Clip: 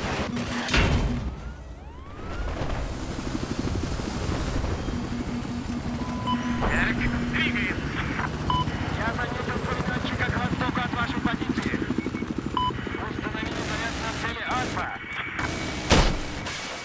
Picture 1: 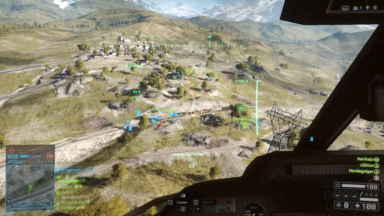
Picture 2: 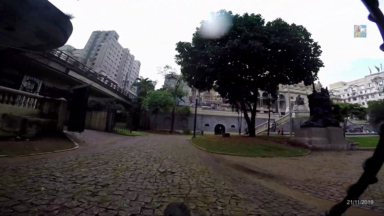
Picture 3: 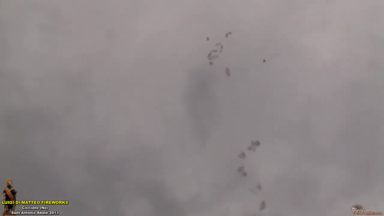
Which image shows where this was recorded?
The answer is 1